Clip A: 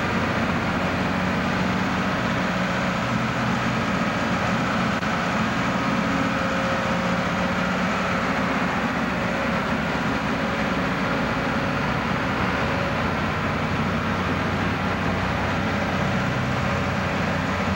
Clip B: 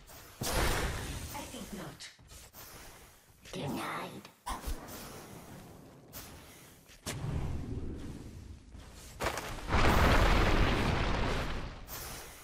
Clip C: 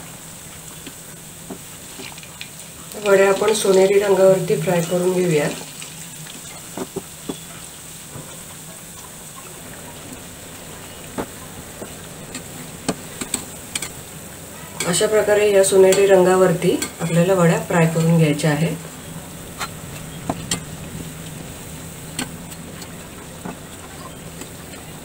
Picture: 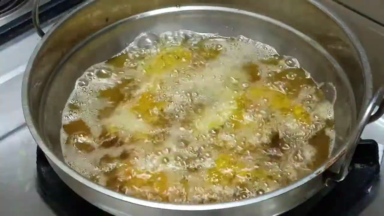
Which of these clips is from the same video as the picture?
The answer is C